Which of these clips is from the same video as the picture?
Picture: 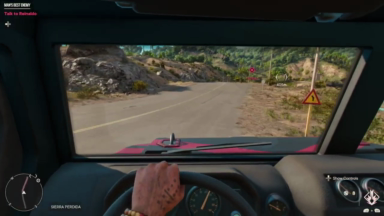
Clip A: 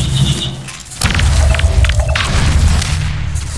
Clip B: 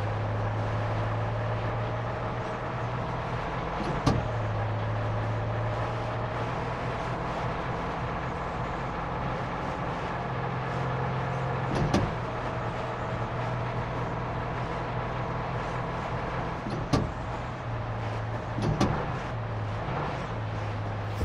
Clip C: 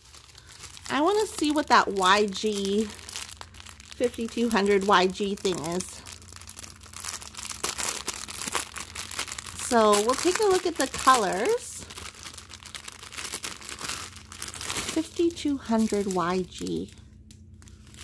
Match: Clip B